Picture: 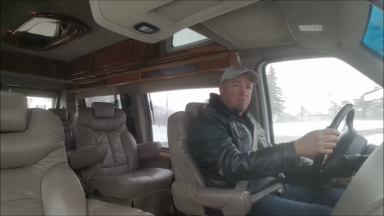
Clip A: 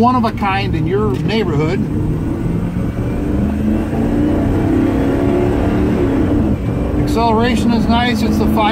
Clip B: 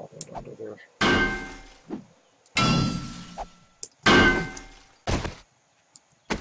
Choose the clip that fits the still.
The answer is A